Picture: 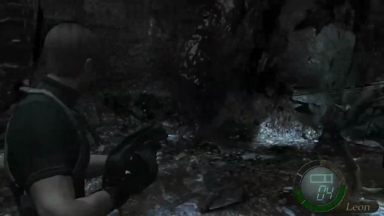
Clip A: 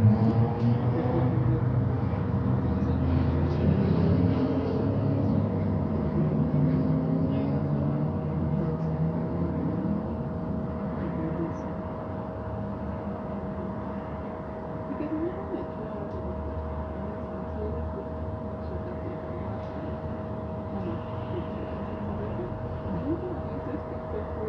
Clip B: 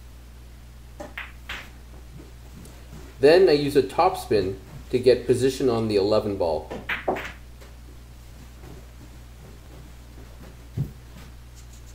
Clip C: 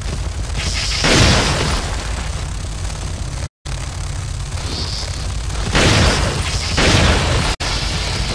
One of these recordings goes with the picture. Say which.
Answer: C